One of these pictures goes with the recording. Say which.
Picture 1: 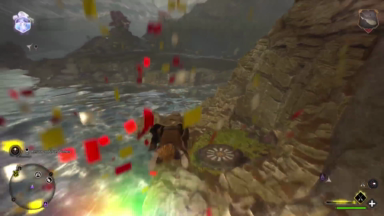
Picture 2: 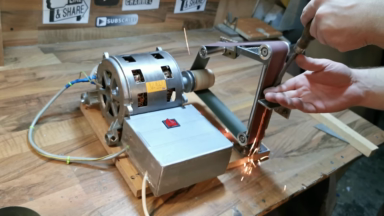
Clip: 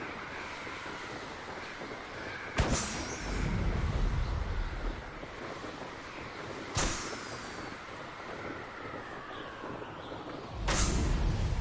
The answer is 1